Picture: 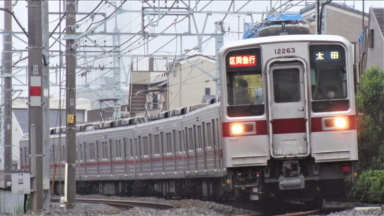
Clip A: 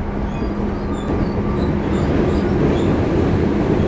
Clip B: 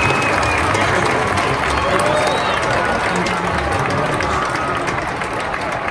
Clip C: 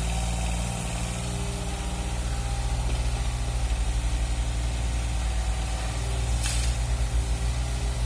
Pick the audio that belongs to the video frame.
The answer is A